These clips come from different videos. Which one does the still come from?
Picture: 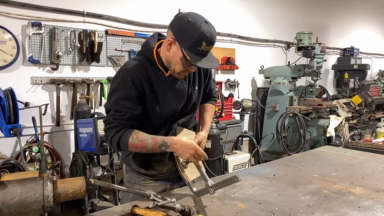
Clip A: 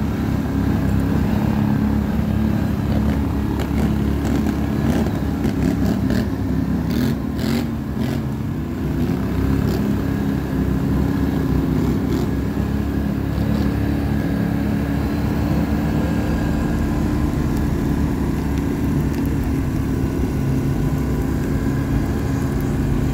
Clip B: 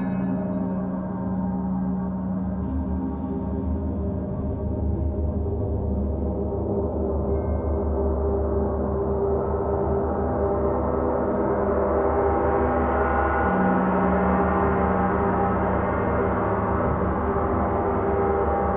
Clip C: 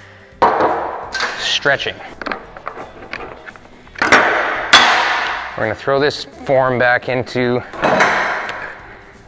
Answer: C